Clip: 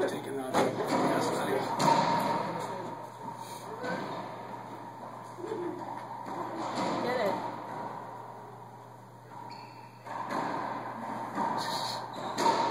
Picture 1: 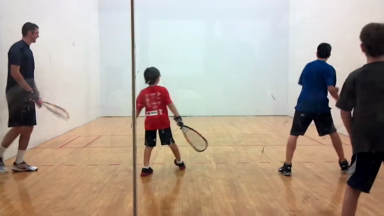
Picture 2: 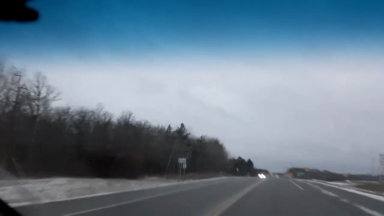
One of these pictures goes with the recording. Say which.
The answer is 1